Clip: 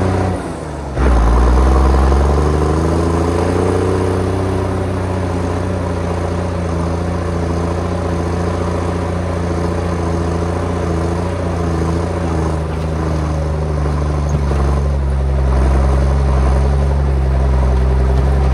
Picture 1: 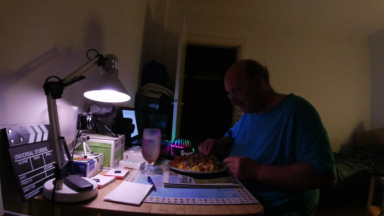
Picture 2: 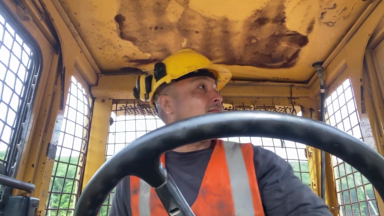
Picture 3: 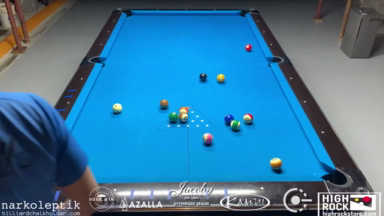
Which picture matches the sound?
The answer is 2